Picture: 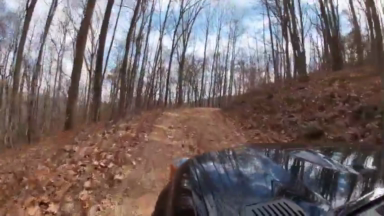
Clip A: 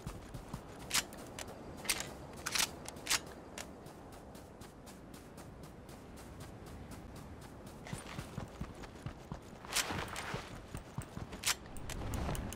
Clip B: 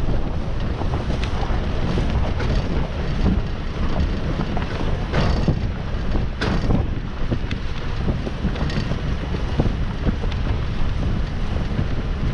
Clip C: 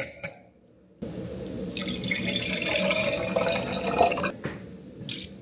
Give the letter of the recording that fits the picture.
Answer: B